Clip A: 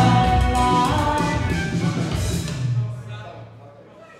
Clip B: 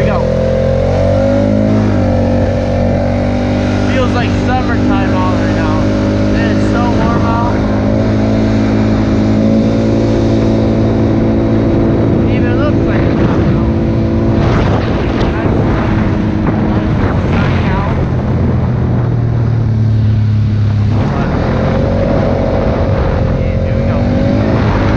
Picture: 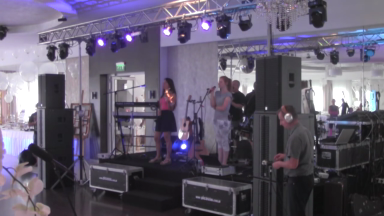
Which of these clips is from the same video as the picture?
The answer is A